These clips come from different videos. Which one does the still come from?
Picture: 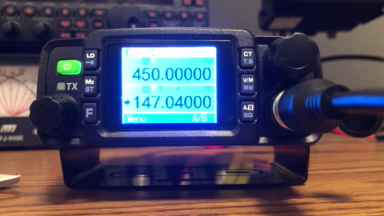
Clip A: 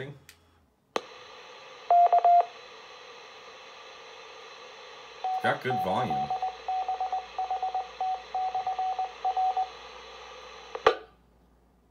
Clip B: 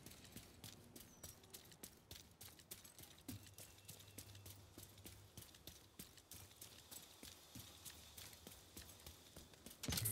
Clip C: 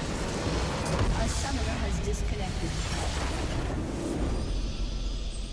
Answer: A